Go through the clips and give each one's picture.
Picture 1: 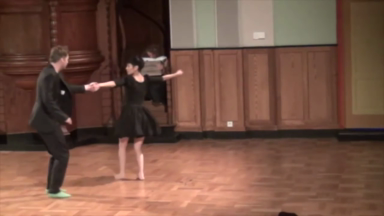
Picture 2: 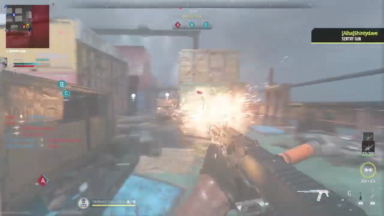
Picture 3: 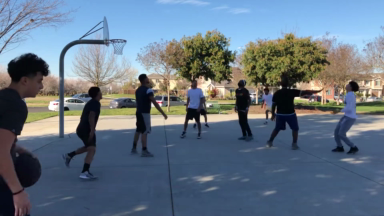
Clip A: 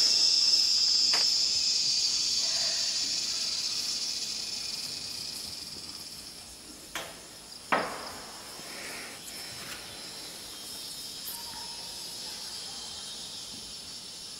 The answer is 1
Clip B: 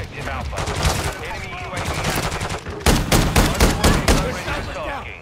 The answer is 2